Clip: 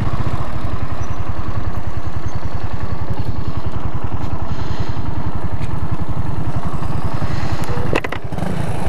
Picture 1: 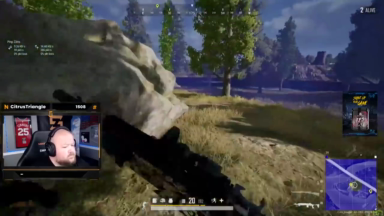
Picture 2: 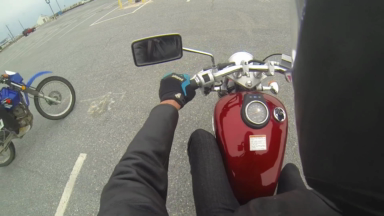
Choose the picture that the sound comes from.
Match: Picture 2